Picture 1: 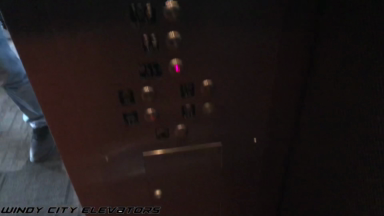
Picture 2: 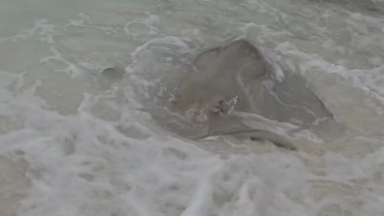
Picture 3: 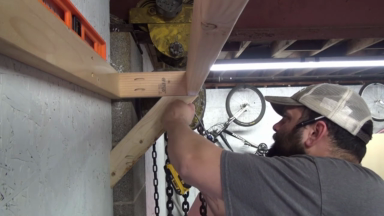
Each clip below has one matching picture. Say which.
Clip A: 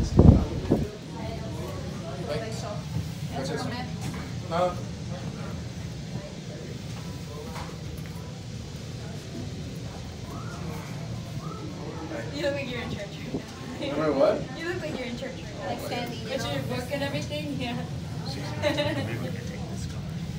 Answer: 1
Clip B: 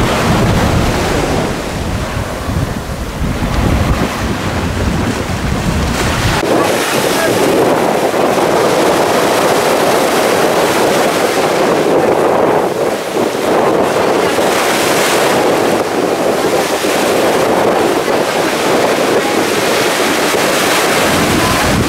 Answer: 2